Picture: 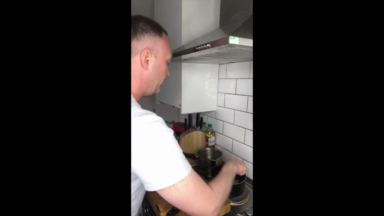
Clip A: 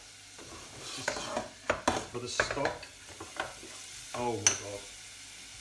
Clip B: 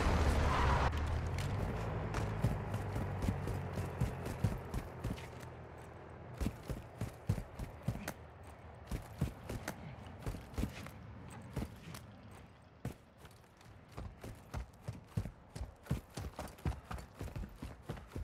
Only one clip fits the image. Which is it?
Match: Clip A